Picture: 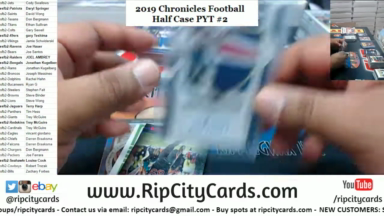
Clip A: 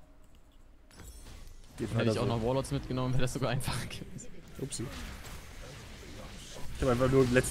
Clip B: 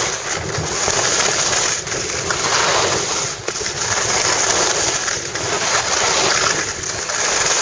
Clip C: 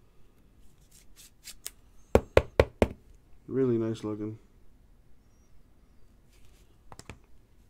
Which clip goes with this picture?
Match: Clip C